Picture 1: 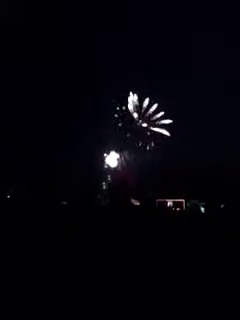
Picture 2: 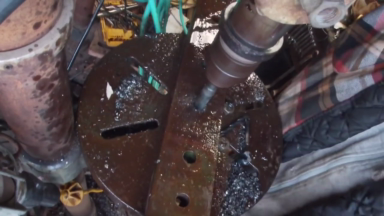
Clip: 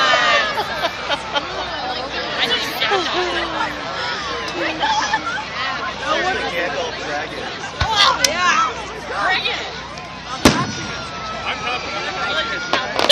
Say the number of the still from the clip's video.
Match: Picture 1